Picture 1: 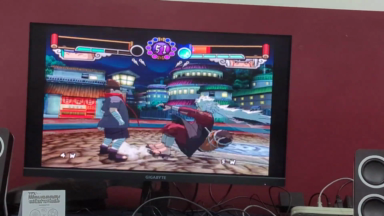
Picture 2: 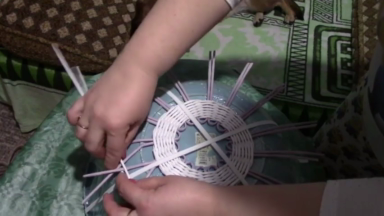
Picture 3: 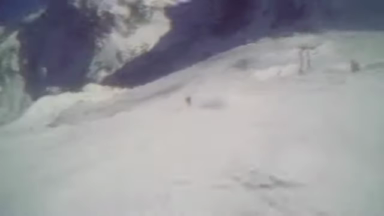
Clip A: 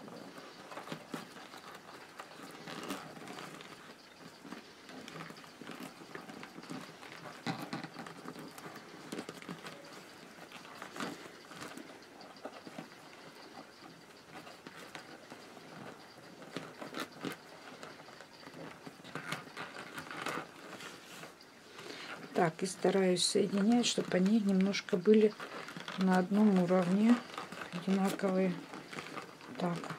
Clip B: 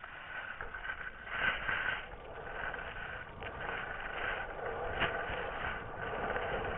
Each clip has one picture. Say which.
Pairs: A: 2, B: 3